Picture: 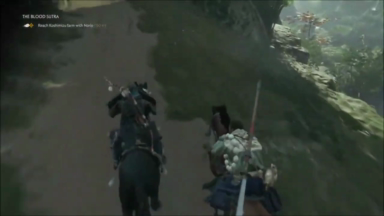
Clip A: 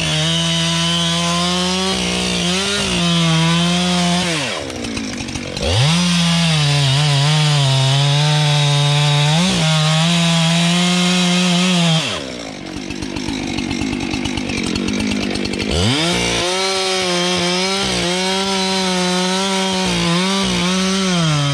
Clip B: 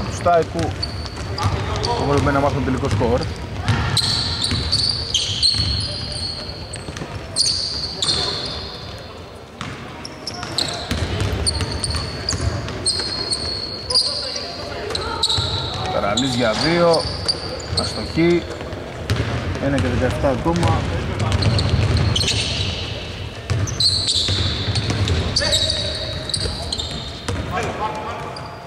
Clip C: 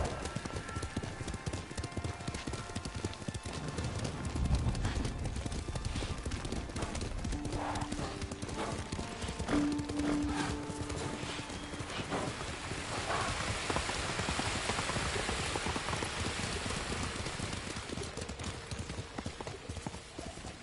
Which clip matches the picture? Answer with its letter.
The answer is C